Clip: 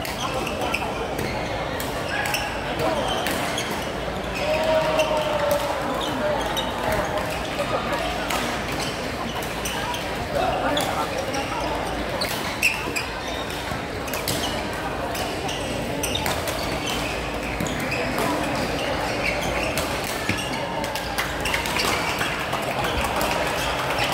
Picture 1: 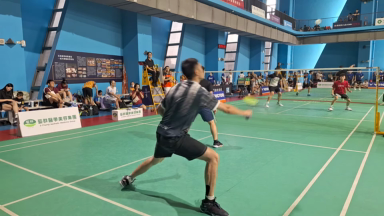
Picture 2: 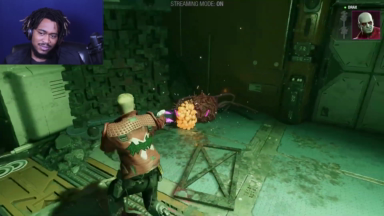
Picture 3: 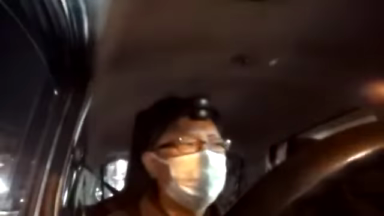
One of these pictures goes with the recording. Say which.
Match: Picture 1